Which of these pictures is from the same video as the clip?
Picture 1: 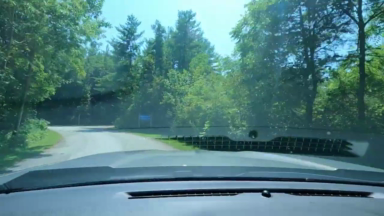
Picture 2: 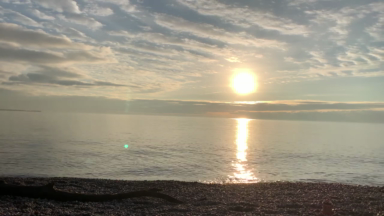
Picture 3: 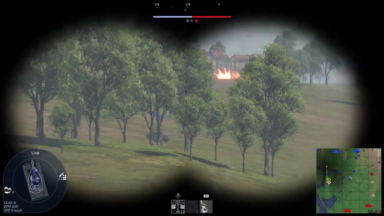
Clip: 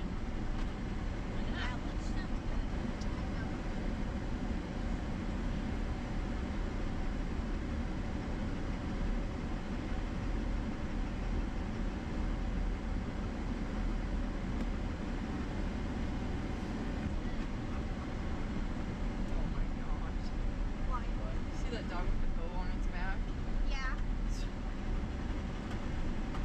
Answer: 1